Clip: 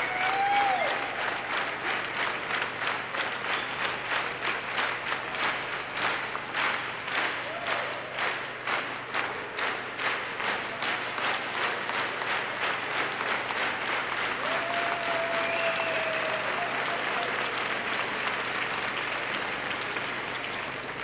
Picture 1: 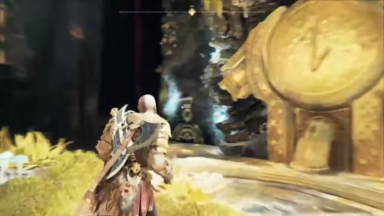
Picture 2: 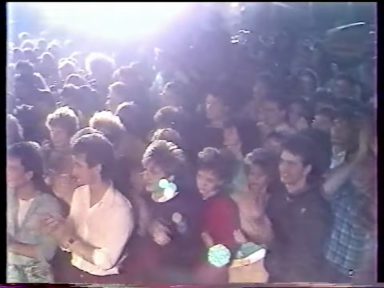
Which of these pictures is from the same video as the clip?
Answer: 2